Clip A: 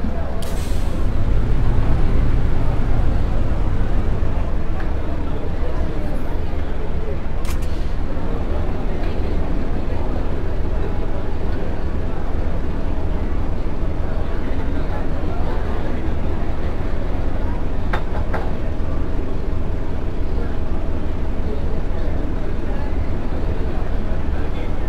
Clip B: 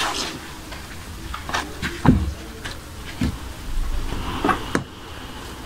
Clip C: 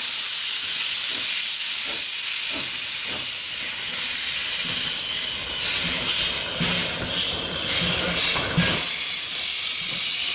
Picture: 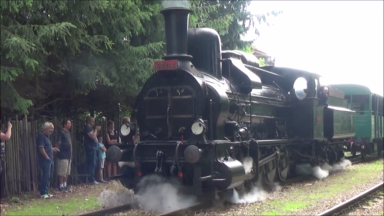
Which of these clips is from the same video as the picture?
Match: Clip C